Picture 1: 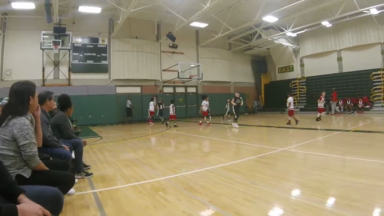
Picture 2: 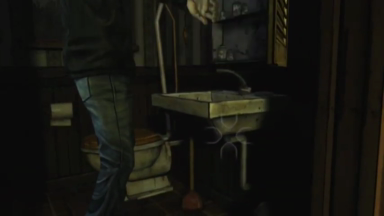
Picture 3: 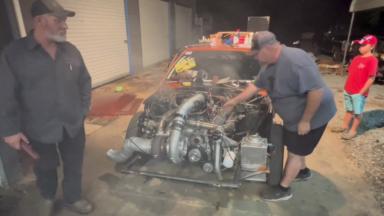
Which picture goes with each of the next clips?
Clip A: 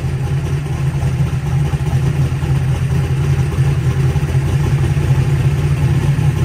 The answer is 3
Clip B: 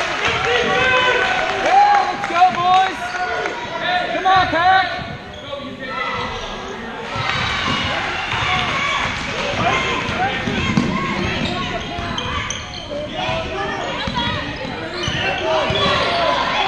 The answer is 1